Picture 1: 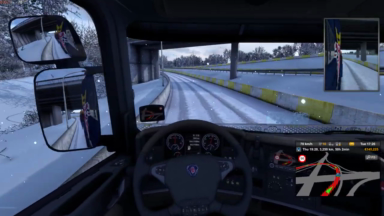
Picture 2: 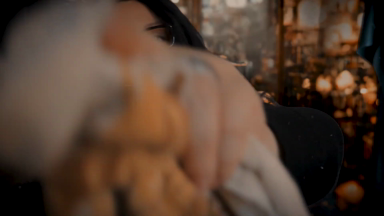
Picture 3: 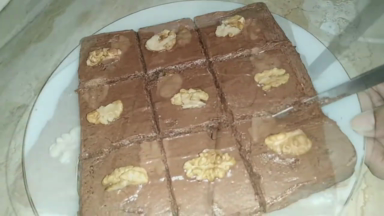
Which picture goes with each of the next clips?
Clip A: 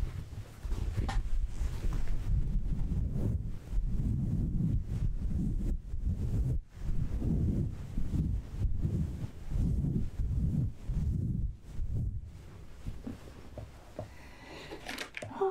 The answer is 2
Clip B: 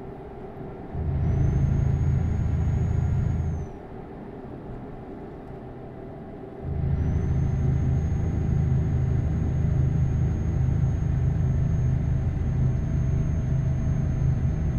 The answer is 1